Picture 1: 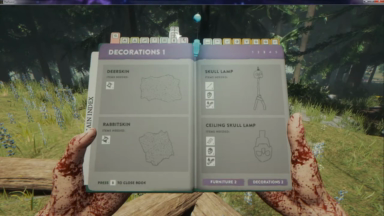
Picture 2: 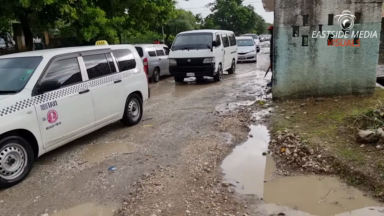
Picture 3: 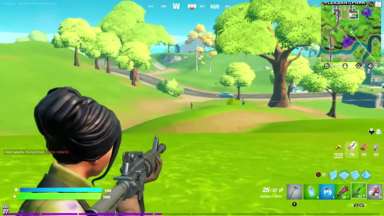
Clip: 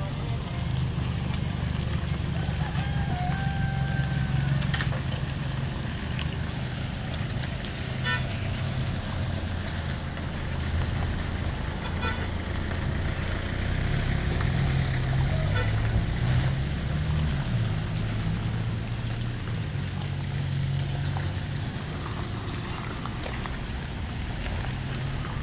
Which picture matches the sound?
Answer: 2